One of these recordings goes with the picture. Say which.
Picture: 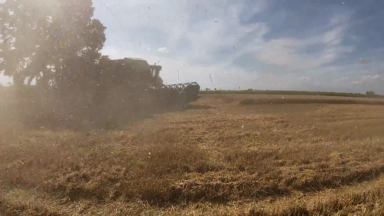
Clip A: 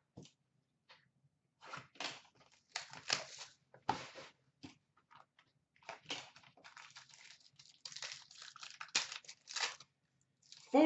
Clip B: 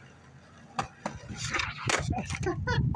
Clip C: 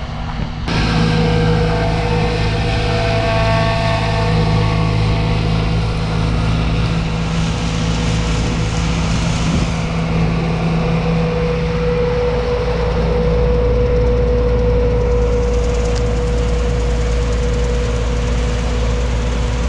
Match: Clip C